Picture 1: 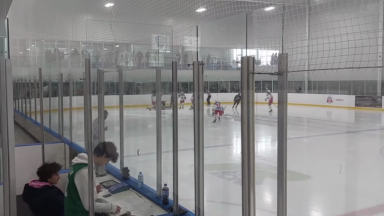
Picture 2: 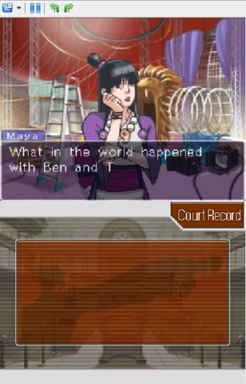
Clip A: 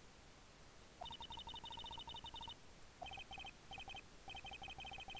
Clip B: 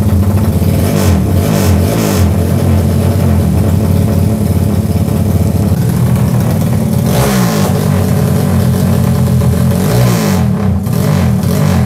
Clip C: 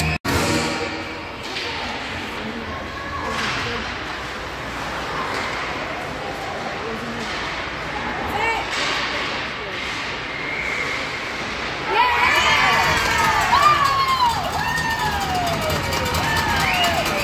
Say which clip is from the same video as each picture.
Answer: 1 C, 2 A